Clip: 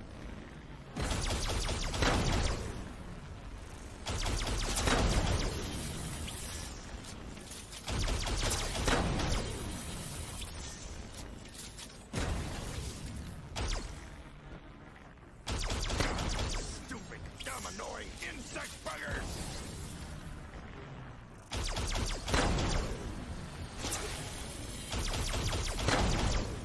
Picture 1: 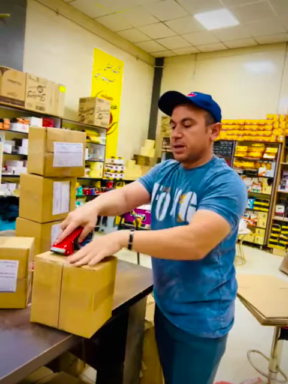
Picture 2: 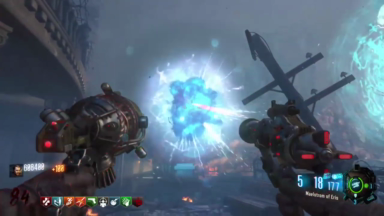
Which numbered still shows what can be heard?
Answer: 2